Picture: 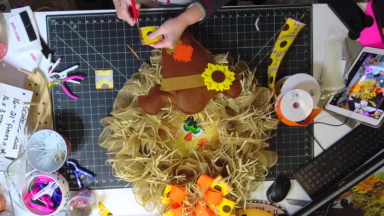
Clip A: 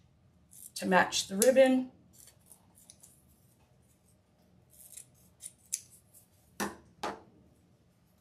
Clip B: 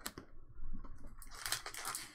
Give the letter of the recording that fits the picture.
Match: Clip A